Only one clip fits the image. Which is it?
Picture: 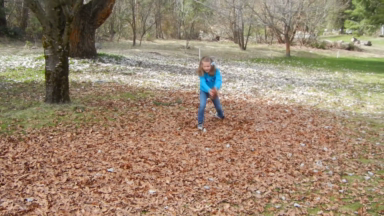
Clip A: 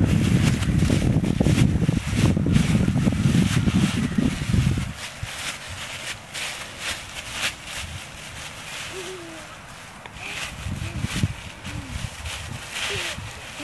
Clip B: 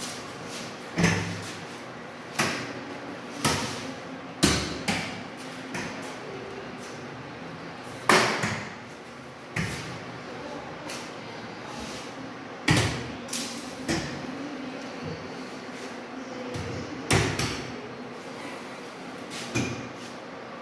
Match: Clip A